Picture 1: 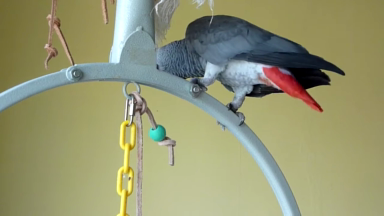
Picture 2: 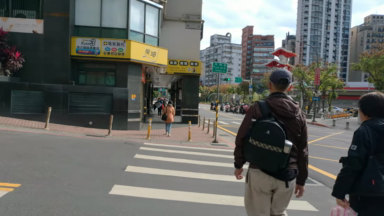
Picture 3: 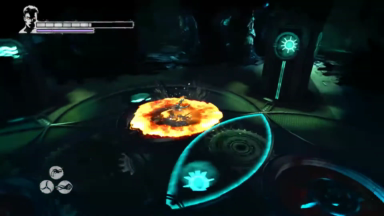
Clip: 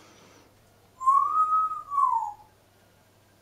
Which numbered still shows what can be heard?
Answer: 1